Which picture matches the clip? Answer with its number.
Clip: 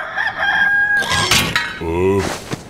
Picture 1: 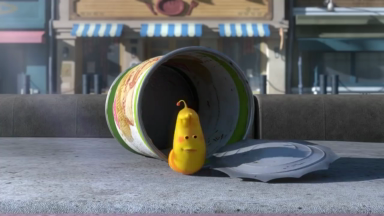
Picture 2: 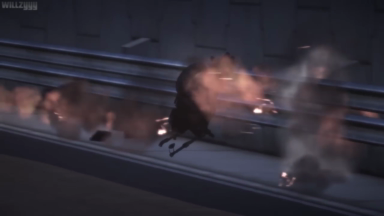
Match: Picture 1